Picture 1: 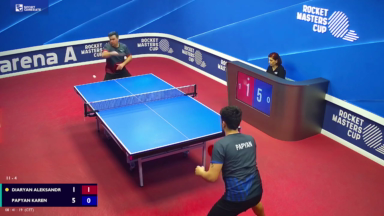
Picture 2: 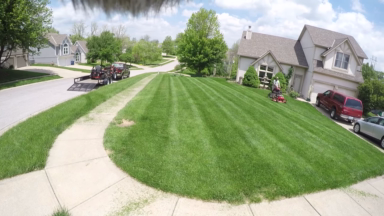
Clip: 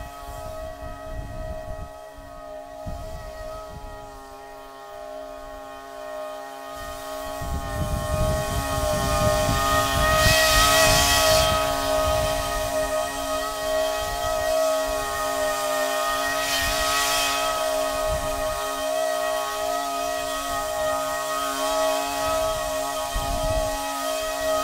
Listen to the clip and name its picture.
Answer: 2